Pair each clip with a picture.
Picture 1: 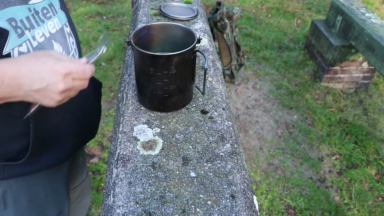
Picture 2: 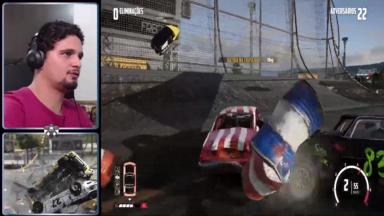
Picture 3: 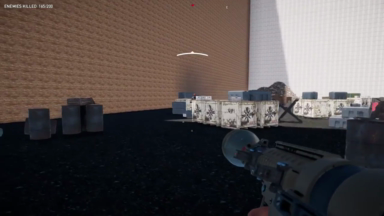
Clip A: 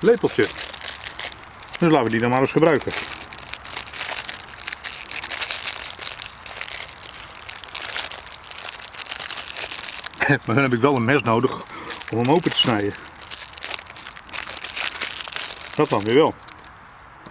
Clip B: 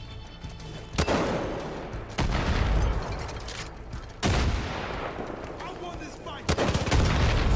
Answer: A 1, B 3